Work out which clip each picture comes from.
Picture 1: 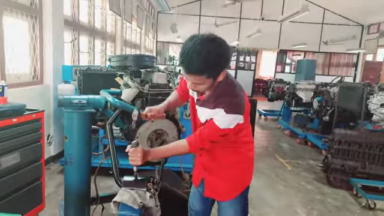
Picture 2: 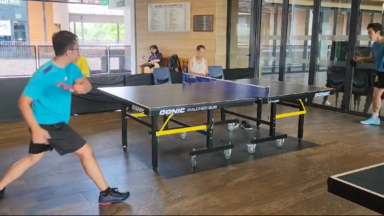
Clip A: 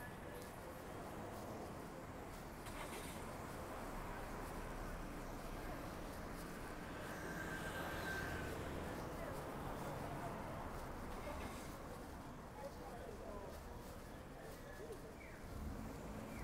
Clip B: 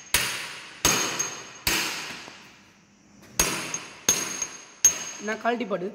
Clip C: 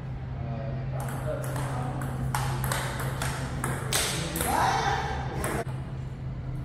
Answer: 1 B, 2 C